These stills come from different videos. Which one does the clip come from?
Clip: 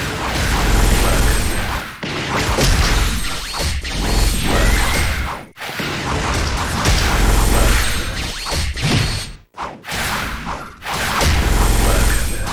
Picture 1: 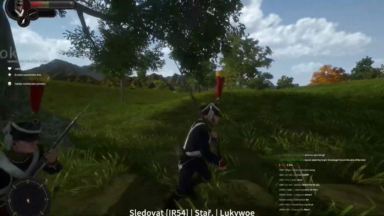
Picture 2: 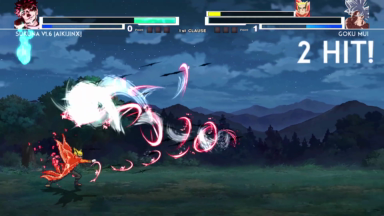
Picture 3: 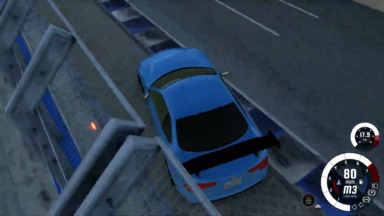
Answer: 2